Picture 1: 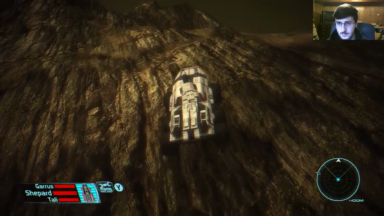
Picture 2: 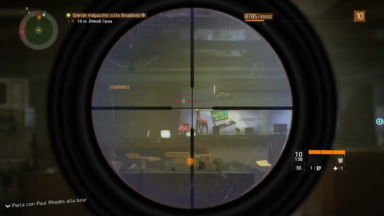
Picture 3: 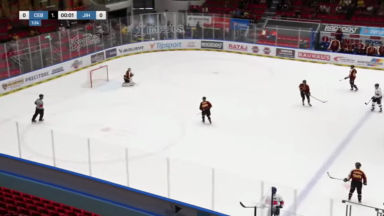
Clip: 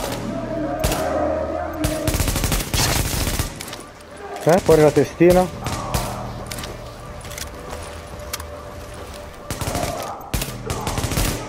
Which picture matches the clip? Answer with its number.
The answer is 2